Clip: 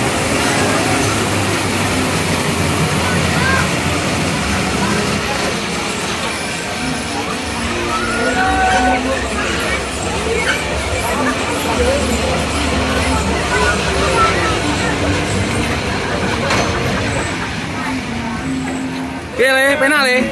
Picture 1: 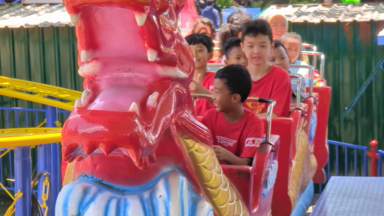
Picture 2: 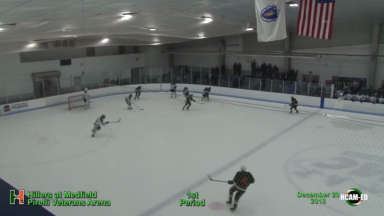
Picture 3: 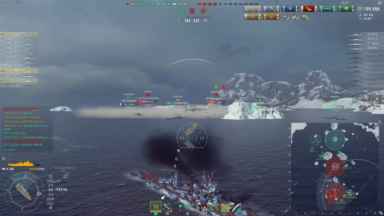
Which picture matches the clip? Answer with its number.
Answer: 1